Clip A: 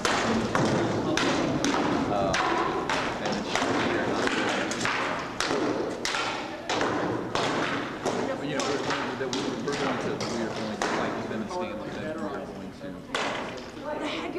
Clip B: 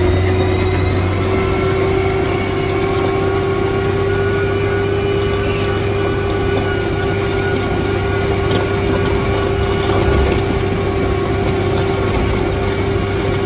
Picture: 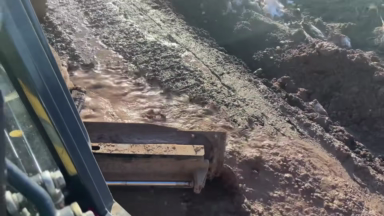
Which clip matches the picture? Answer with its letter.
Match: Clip B